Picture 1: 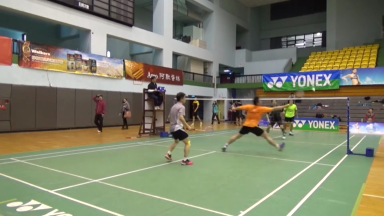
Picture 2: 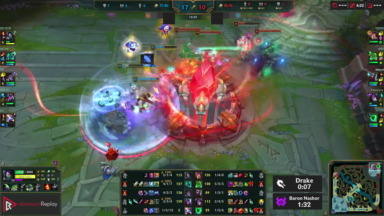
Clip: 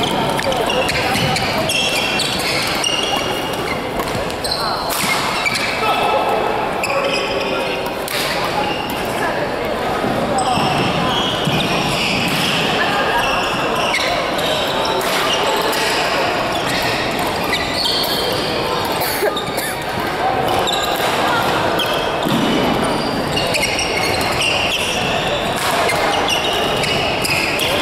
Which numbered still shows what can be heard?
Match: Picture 1